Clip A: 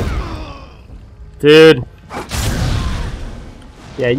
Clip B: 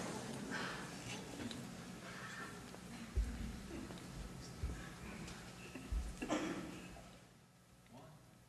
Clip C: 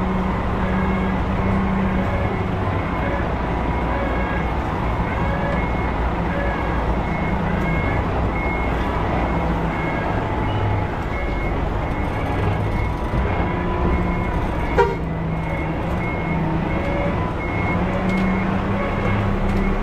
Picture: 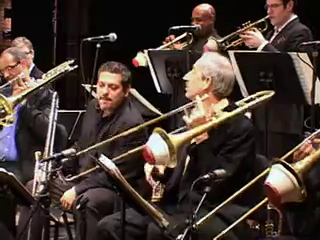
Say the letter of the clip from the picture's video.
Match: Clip B